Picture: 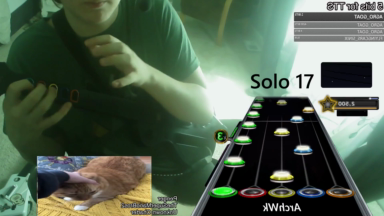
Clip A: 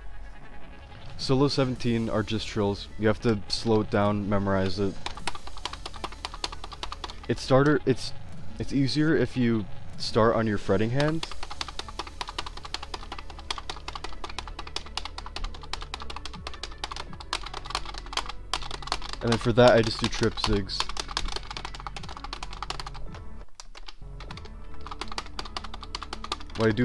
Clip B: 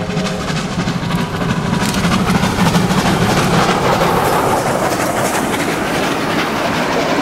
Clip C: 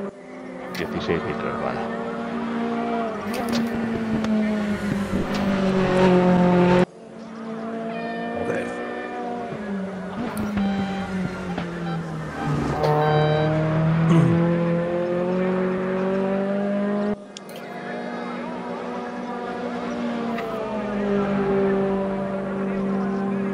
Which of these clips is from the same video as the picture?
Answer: A